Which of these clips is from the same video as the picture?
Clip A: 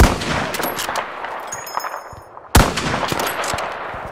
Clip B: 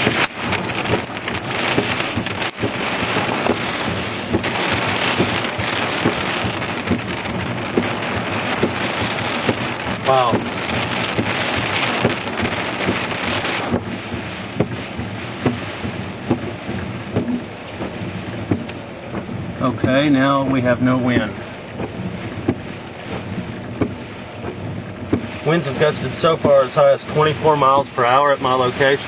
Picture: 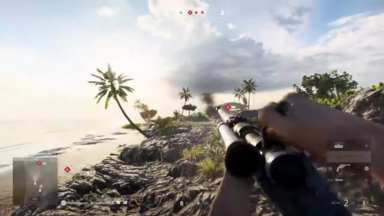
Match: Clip A